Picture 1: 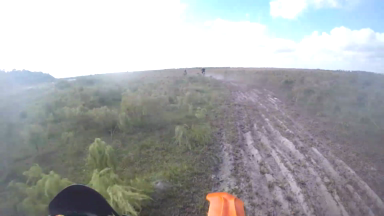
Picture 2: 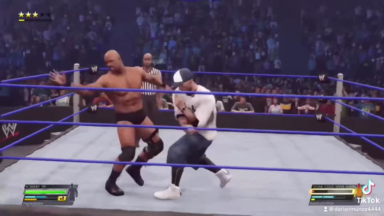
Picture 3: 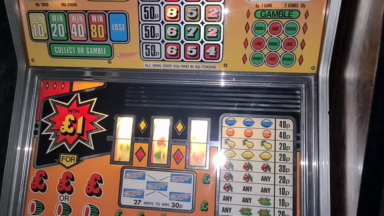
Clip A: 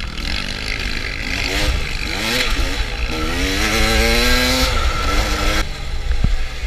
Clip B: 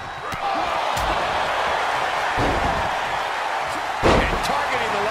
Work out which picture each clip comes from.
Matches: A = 1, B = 2